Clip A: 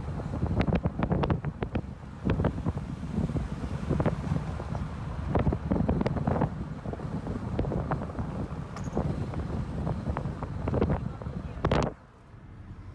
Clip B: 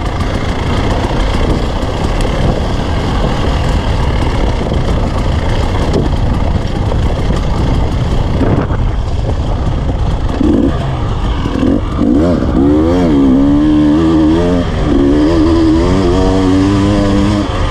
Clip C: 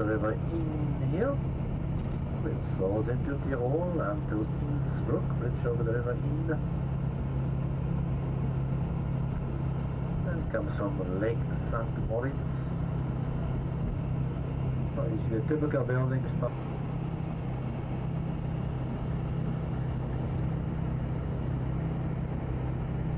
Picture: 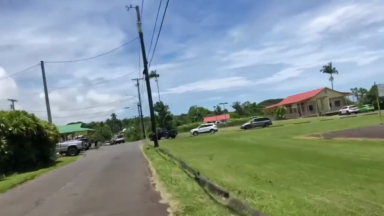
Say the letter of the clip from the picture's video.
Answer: A